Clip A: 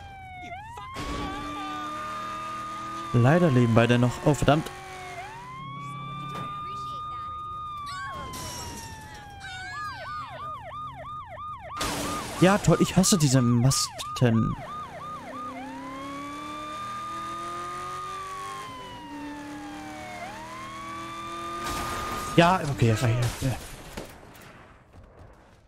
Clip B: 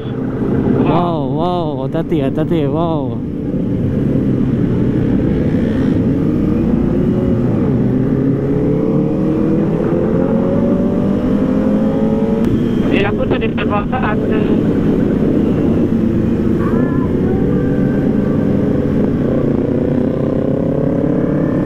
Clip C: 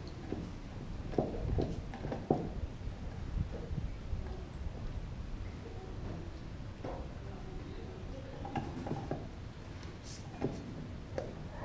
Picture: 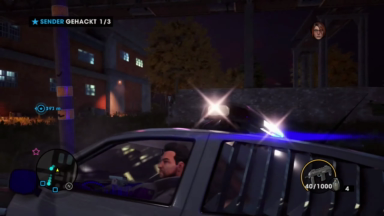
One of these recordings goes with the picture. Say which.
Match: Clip A